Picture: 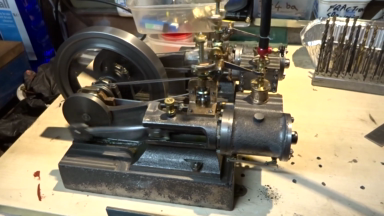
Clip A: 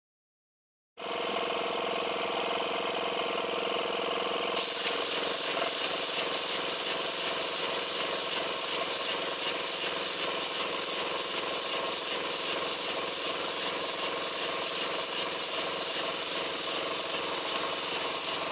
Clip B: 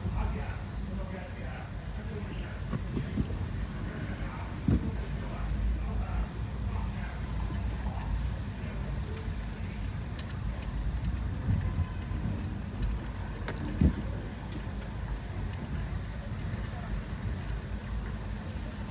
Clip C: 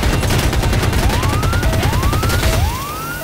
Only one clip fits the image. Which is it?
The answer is A